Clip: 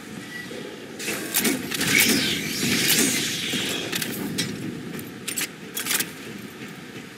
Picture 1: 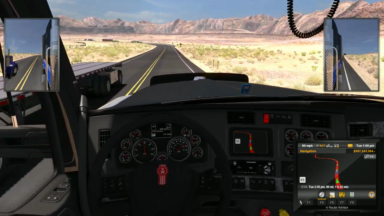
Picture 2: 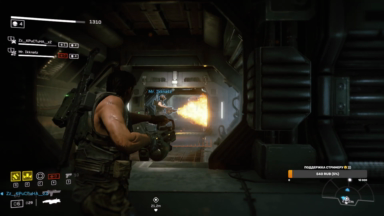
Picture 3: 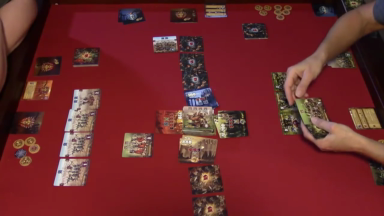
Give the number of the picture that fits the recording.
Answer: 2